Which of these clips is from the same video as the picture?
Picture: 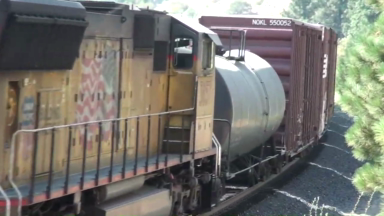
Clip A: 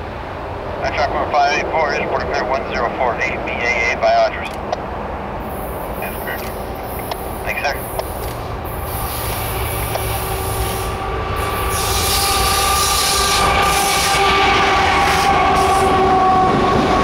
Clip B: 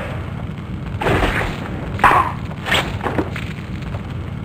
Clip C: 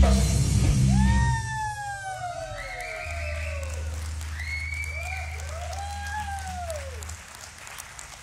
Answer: A